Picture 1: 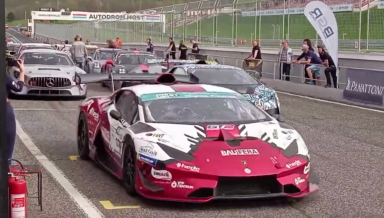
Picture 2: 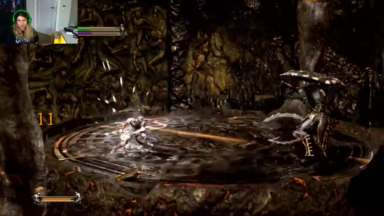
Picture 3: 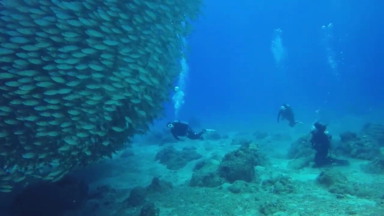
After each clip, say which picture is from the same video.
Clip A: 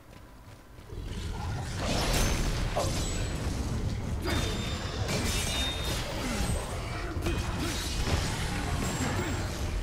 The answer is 2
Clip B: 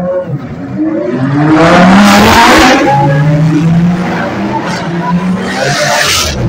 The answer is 1